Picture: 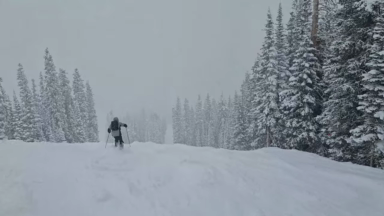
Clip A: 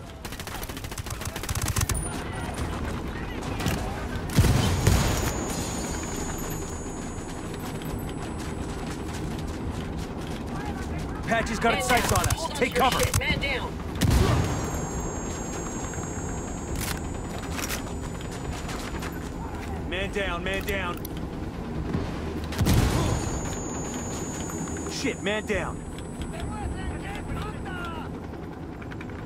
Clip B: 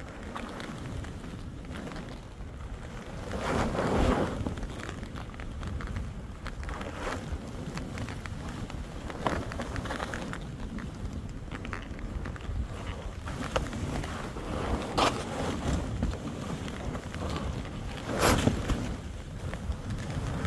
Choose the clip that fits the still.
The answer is B